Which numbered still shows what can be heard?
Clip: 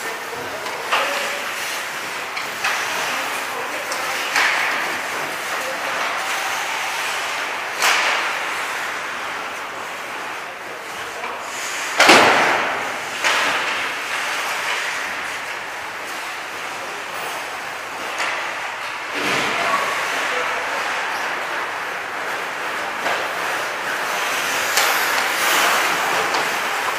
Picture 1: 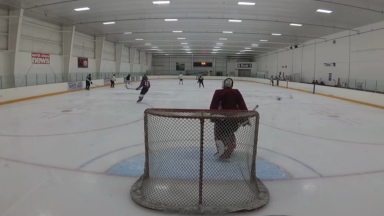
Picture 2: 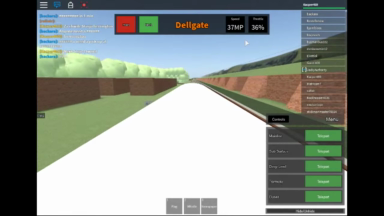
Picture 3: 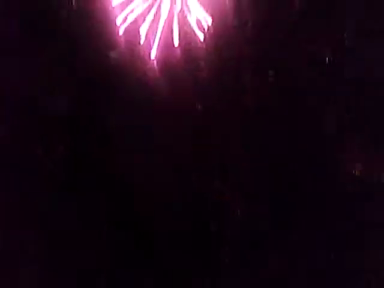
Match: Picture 1